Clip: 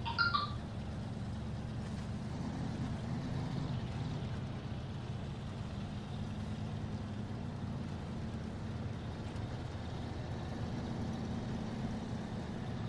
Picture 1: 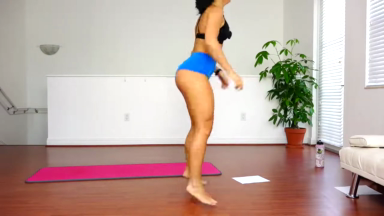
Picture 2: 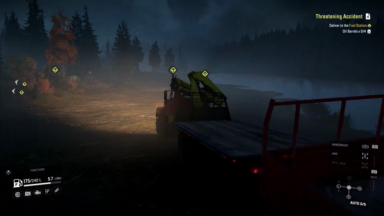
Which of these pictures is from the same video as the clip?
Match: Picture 2